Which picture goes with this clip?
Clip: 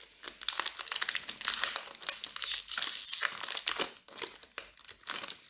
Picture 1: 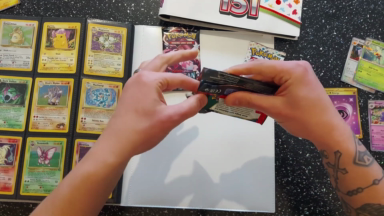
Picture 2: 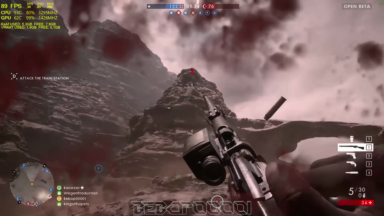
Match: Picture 1